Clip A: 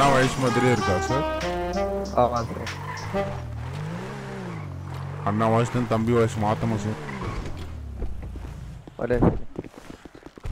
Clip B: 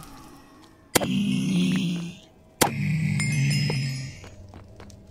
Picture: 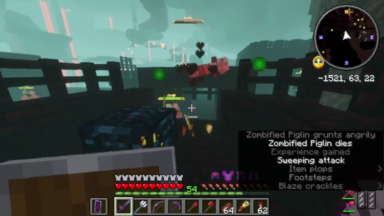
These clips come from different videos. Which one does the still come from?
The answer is B